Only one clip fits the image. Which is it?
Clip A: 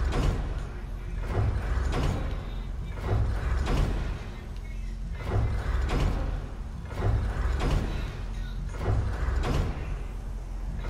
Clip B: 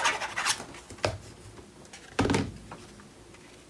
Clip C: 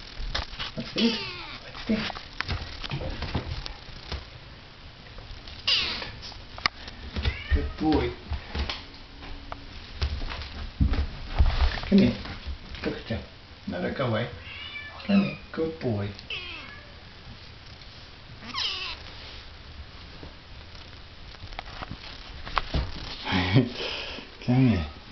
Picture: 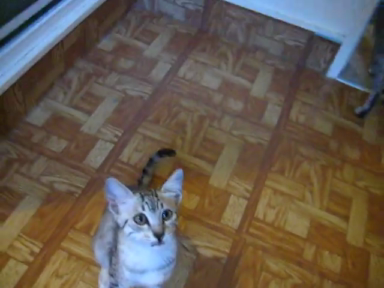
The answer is C